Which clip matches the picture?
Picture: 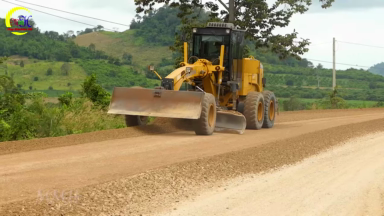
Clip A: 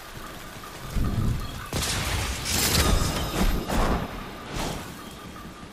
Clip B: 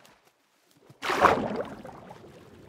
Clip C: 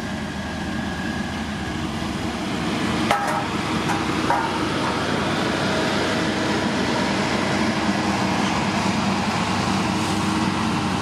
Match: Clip C